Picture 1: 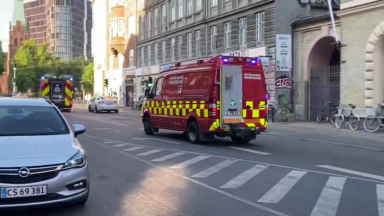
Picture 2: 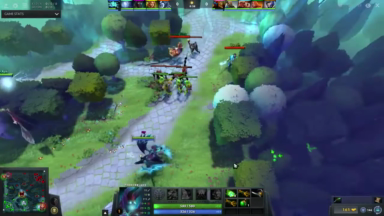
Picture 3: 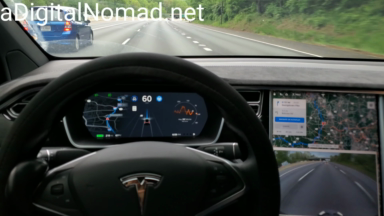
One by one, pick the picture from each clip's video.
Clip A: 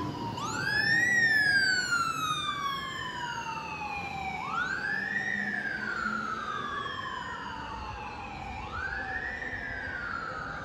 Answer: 1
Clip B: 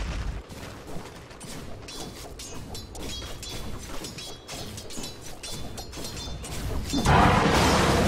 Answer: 2